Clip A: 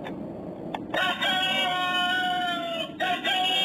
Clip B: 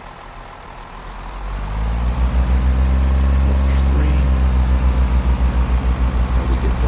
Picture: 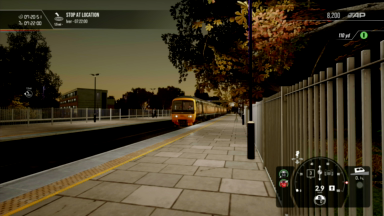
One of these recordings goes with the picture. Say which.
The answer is B